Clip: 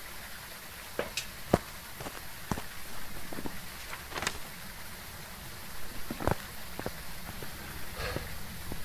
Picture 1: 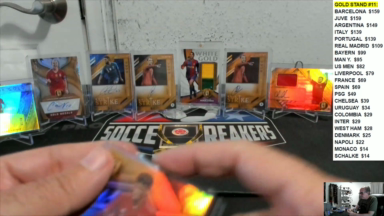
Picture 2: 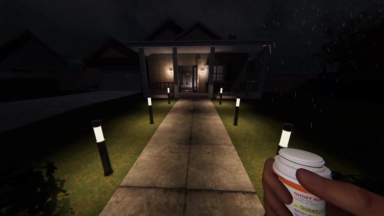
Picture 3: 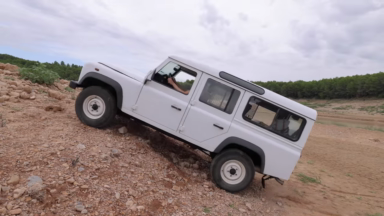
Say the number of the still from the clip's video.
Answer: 2